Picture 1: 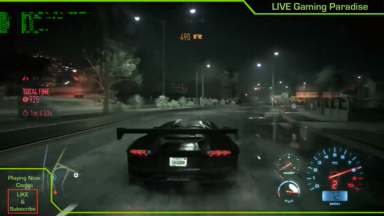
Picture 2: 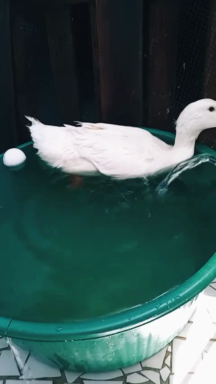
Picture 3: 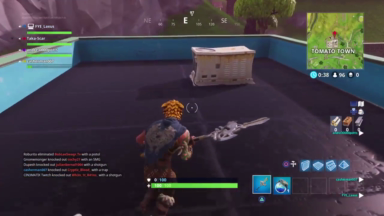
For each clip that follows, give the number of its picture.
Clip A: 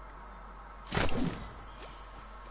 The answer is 3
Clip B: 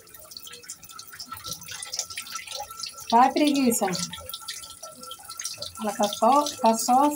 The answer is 2